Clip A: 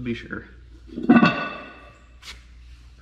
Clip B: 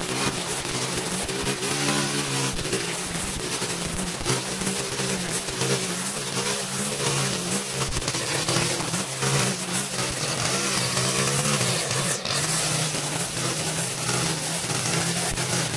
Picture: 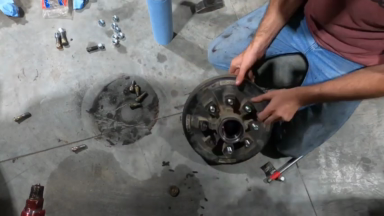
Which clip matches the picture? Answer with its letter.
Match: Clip A